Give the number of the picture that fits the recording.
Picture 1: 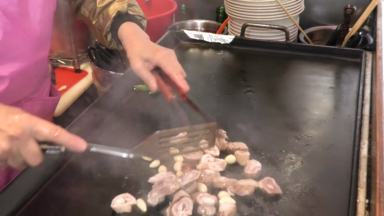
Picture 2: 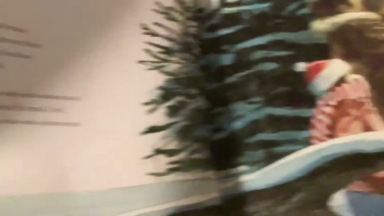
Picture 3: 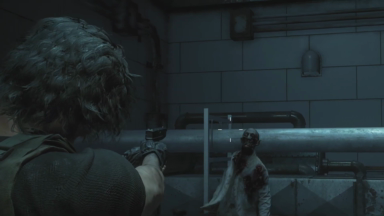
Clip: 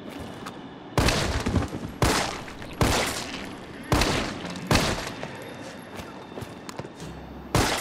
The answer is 3